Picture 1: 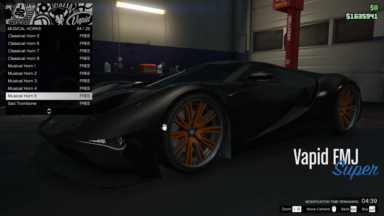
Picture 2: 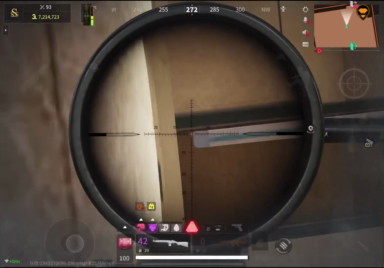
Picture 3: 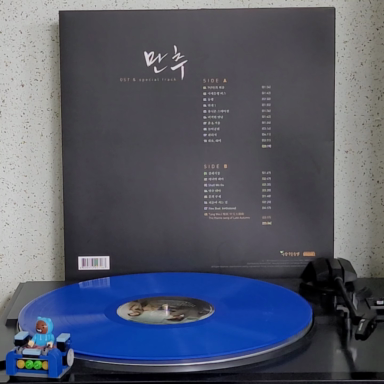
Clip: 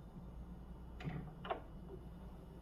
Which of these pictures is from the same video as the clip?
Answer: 3